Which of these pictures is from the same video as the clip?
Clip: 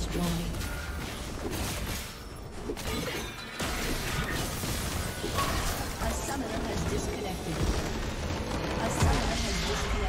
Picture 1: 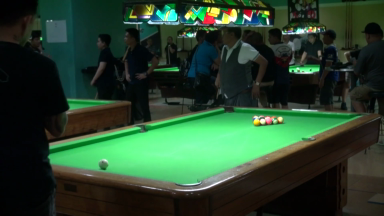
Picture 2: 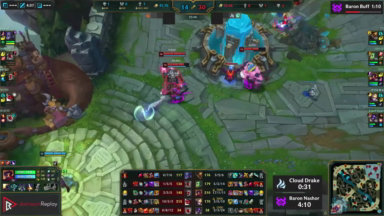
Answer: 2